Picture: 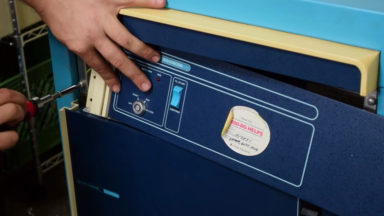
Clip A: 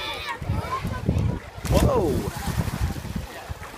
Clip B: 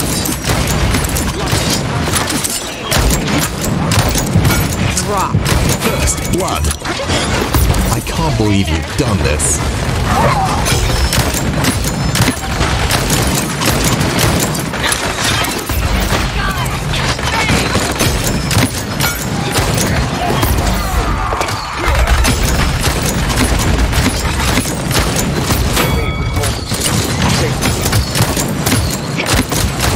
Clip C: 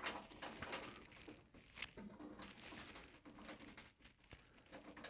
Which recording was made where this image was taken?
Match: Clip C